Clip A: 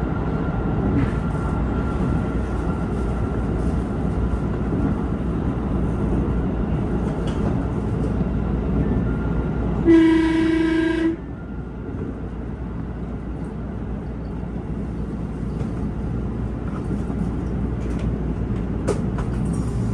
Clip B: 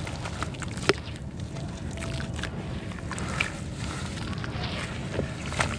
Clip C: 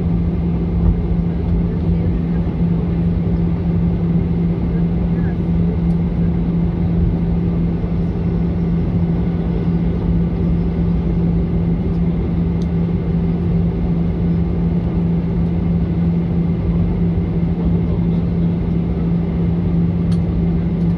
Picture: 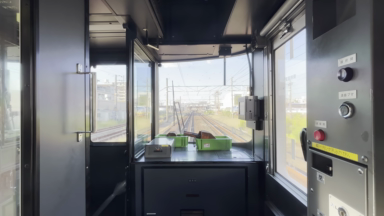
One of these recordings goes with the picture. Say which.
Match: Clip A